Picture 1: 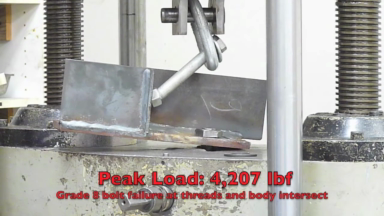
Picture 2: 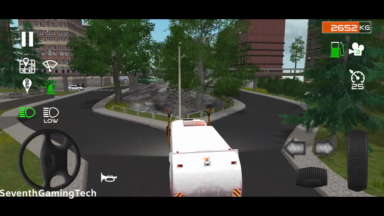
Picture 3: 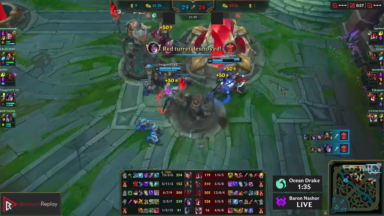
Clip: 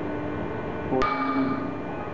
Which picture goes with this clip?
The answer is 1